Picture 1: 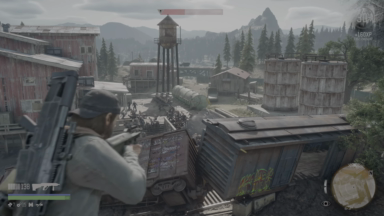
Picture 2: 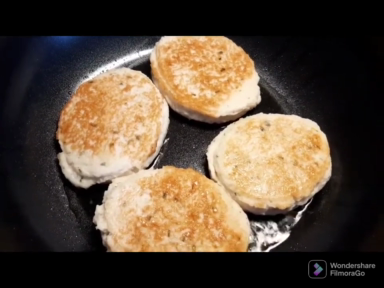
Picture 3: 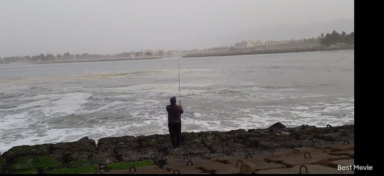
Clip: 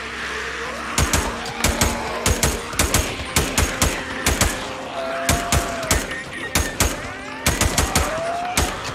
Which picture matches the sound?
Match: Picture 1